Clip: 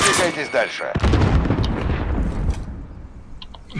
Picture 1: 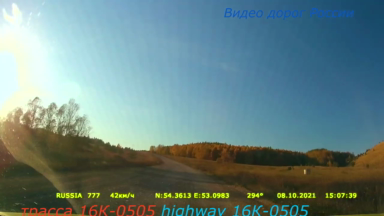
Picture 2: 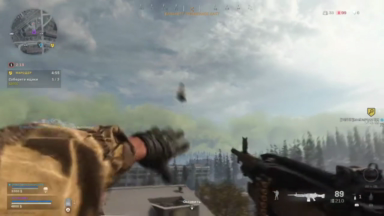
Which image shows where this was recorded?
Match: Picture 2